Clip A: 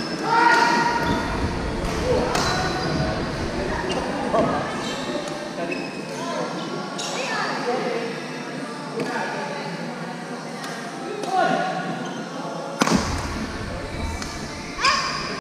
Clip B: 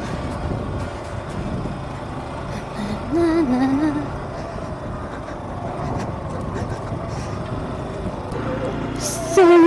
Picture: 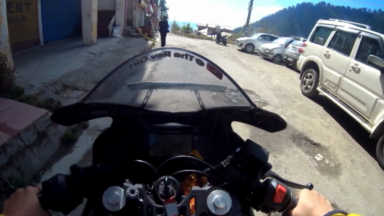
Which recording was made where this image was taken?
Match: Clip B